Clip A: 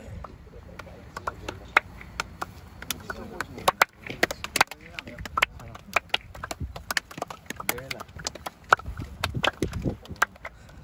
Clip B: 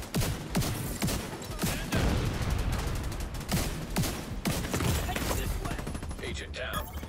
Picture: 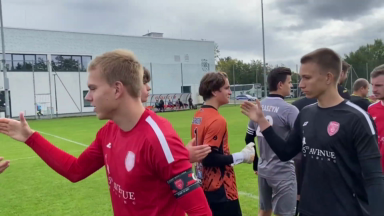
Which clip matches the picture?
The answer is A